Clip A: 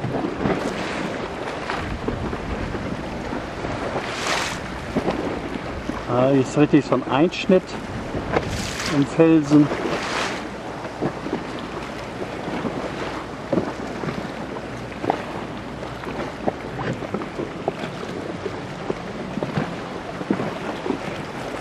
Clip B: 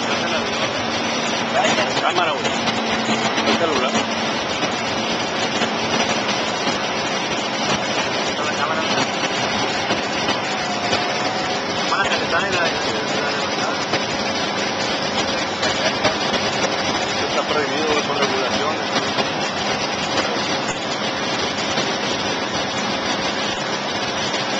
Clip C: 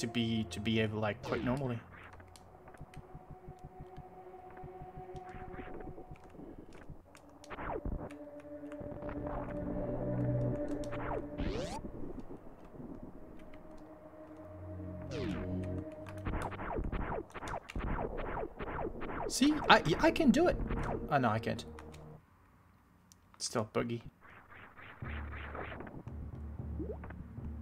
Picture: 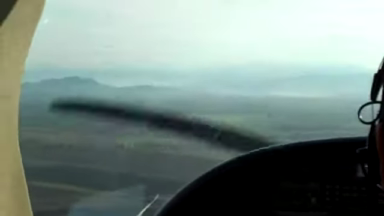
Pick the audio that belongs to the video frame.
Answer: B